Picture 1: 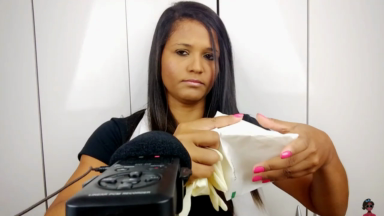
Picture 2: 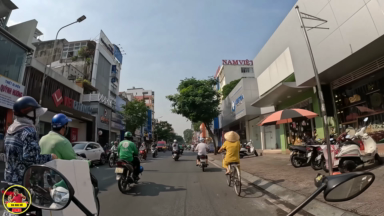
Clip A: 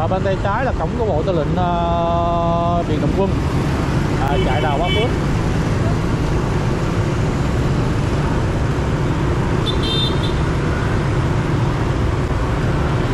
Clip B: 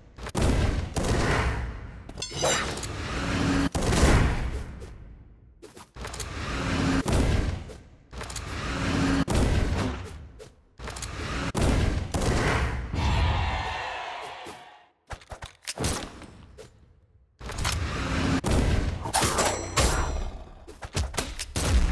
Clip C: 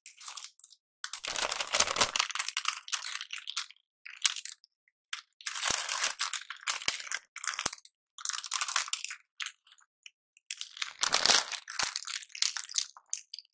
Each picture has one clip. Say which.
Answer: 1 C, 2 A